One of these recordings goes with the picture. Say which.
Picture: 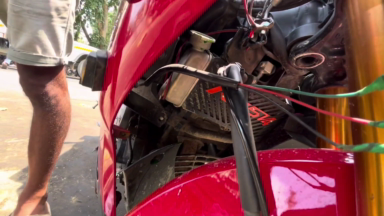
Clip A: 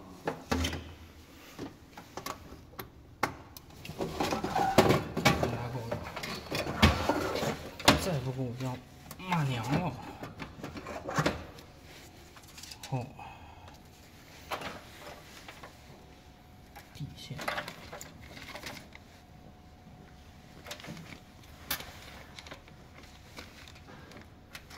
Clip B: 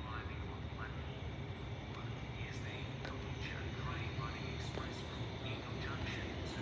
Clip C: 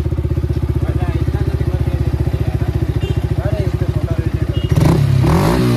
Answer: C